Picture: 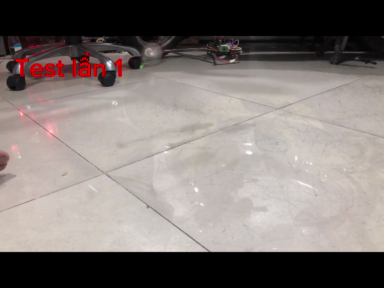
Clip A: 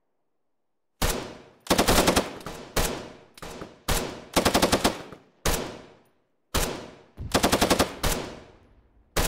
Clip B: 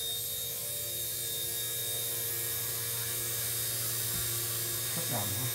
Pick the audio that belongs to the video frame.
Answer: B